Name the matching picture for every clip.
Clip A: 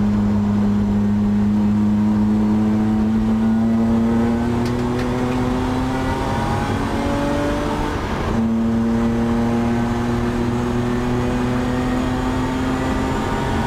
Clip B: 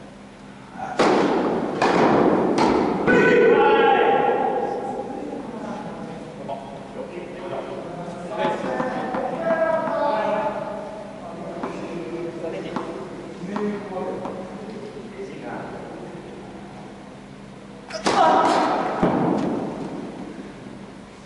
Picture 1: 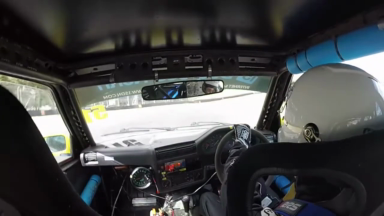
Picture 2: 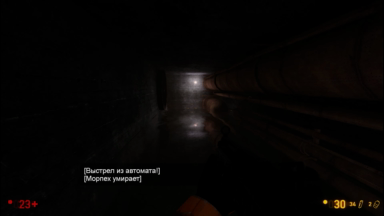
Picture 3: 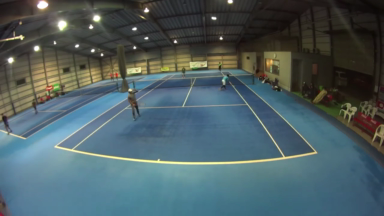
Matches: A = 1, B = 3